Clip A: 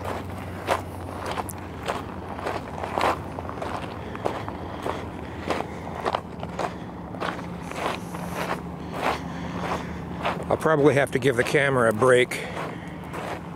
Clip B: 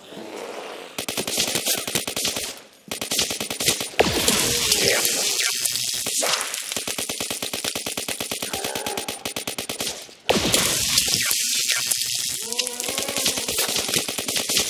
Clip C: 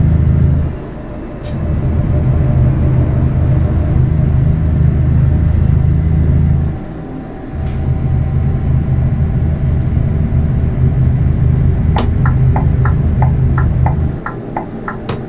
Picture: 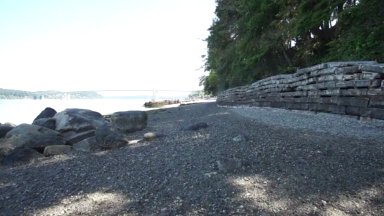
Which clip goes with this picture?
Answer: A